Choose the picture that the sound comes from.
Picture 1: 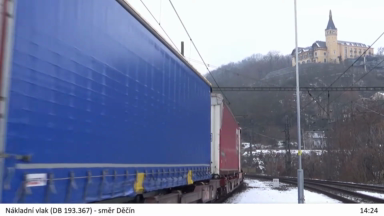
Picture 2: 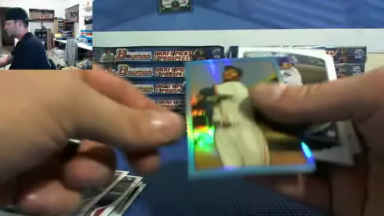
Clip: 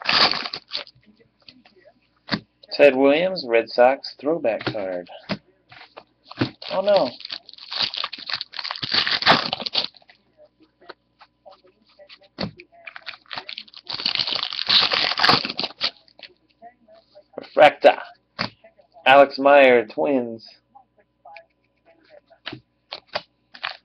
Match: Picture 2